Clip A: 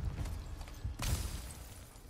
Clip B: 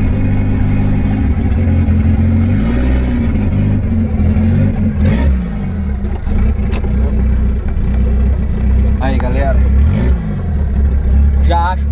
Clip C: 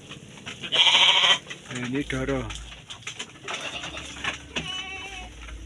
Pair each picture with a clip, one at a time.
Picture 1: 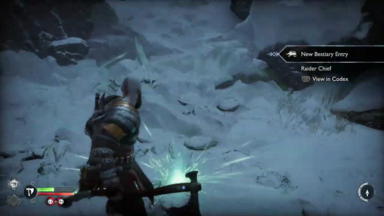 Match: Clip A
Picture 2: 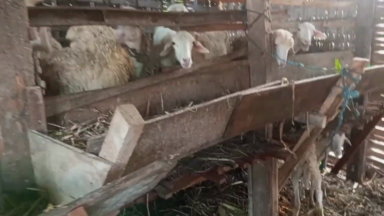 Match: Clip C